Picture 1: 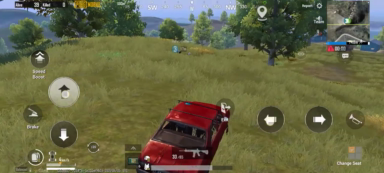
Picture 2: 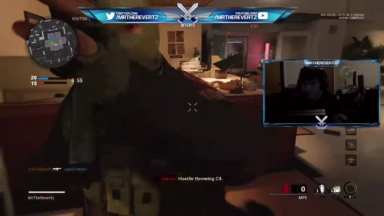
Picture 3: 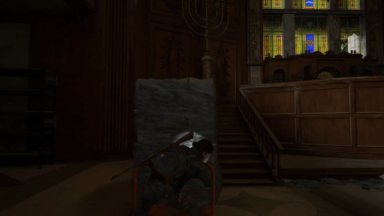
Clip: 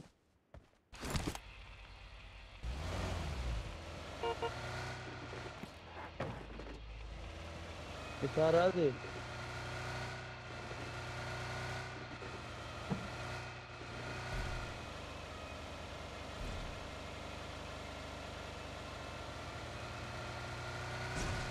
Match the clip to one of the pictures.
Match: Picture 1